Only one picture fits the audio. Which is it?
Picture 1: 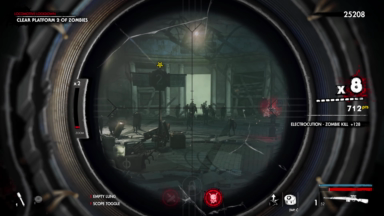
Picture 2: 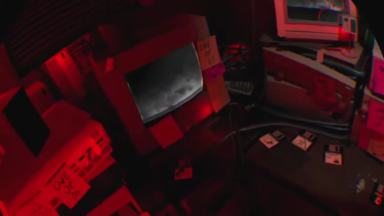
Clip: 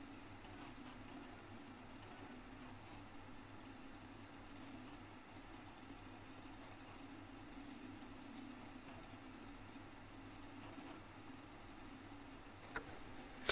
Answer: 2